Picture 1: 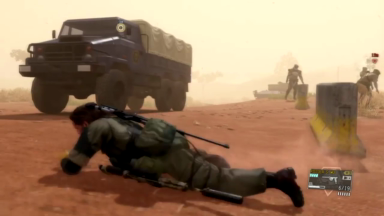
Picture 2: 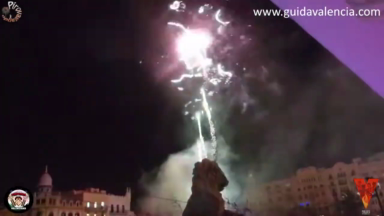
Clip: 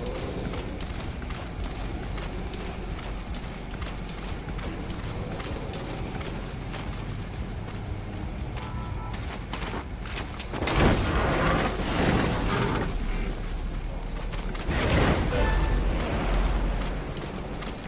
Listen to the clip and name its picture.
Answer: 1